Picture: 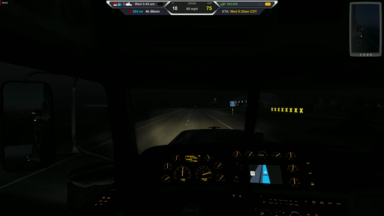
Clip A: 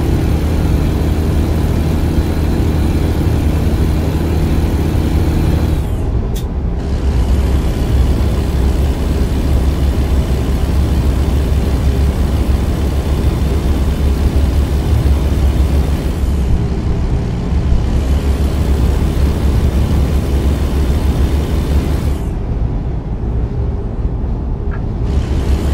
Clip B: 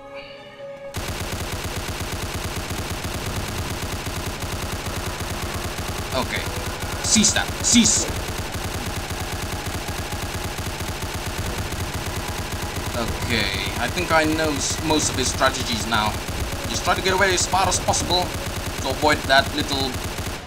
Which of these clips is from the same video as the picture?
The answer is A